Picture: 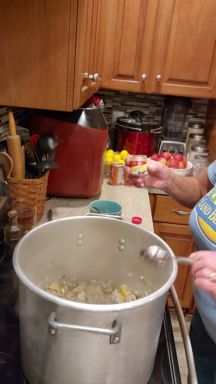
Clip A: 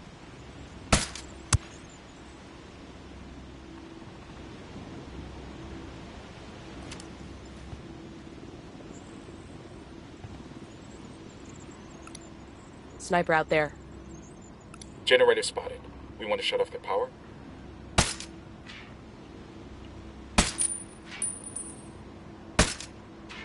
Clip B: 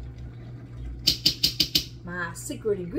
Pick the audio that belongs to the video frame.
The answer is B